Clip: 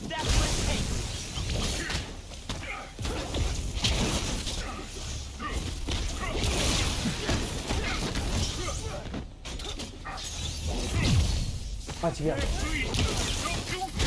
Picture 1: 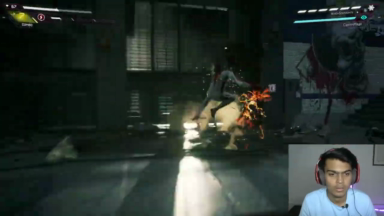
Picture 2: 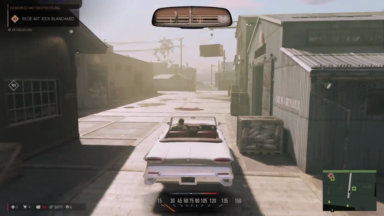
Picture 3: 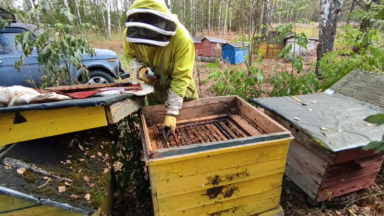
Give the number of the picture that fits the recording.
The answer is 1